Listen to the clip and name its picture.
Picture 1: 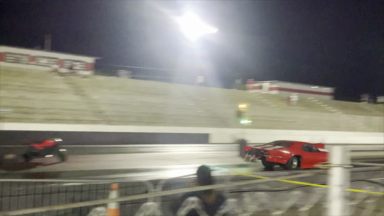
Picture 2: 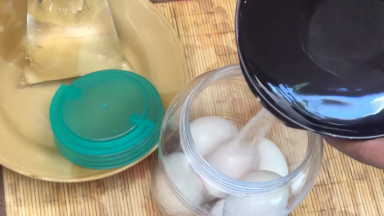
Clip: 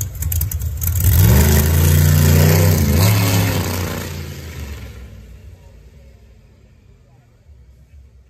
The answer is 1